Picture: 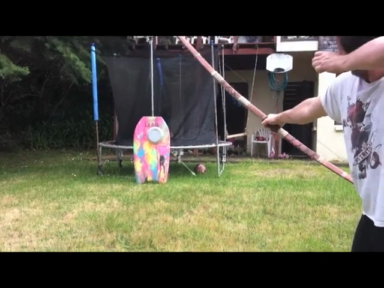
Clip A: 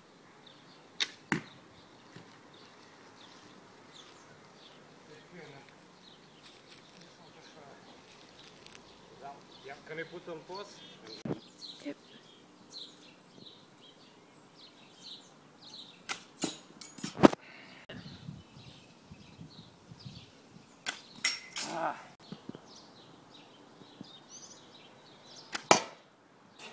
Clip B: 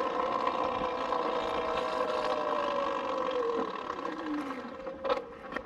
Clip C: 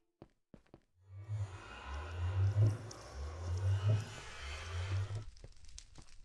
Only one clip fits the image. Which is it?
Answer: A